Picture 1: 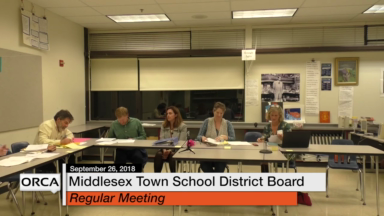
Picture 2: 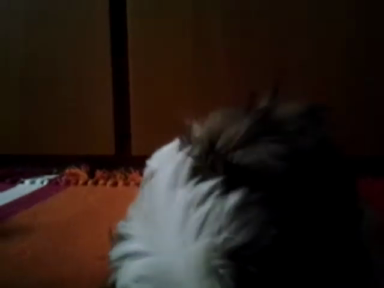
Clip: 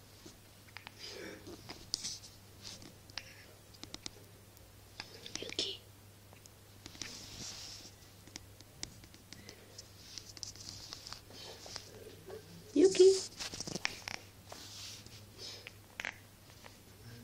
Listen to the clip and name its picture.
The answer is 2